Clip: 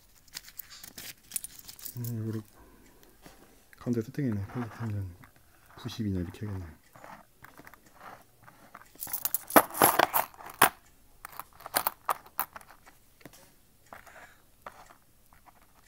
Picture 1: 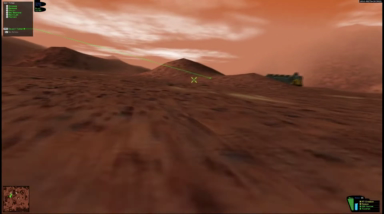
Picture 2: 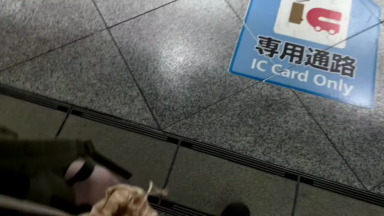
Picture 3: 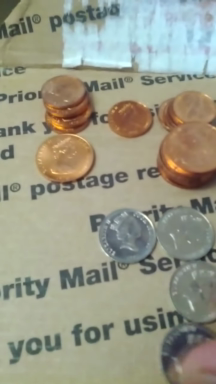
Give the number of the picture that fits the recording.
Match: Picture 3